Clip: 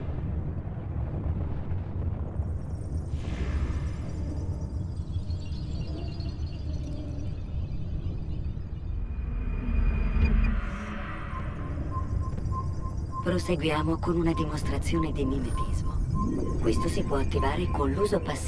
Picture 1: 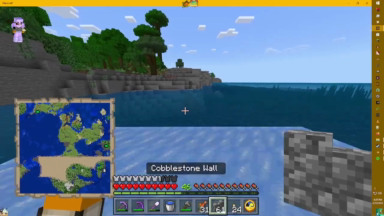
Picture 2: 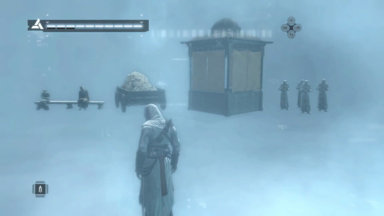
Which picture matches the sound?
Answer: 2